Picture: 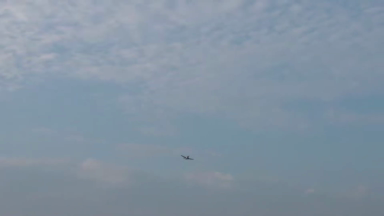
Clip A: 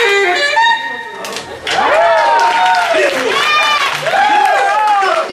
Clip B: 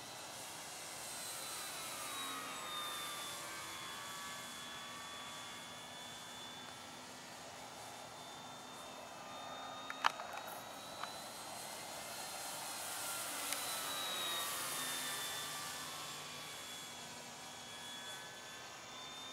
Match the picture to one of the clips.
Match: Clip B